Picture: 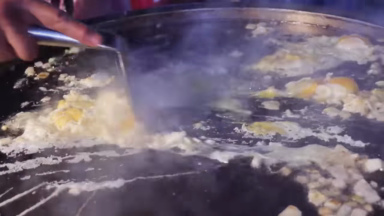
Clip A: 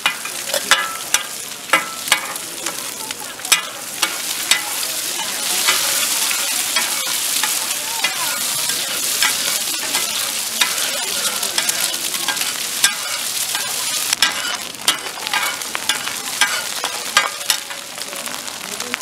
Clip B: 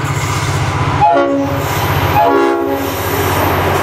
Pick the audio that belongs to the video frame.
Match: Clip A